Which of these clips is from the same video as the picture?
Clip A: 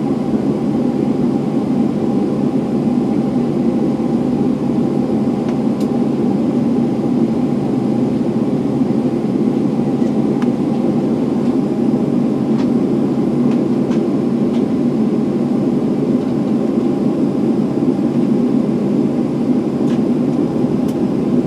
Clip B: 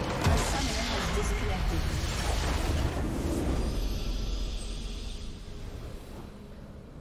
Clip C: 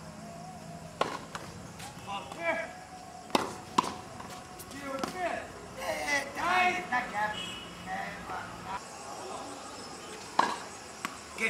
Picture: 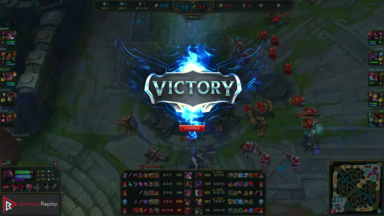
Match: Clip B